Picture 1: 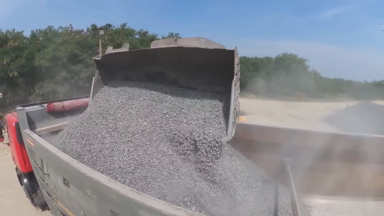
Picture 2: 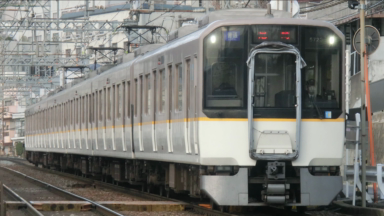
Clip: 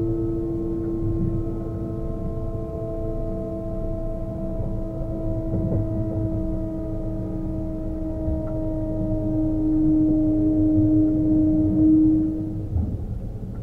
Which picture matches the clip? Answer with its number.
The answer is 2